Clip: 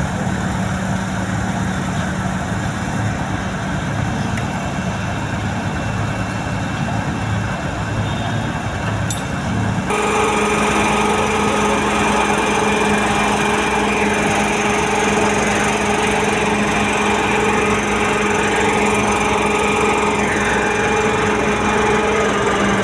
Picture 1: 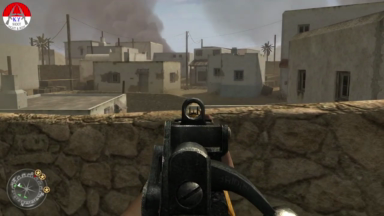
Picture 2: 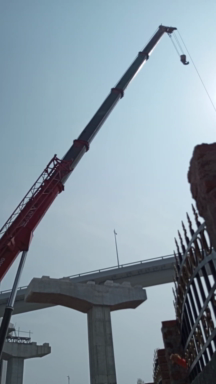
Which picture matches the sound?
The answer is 2